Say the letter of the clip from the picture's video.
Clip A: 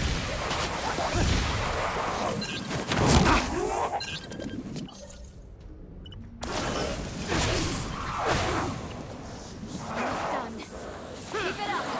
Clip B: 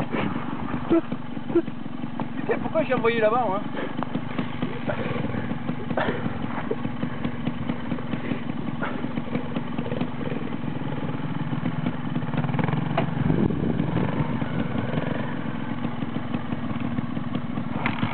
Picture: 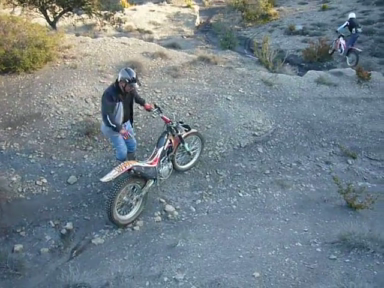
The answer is B